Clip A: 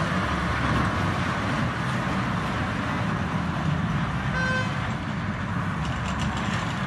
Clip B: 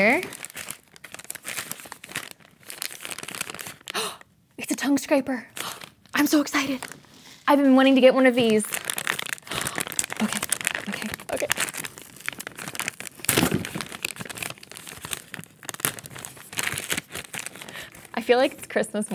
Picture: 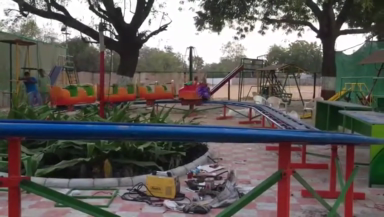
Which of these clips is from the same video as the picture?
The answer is A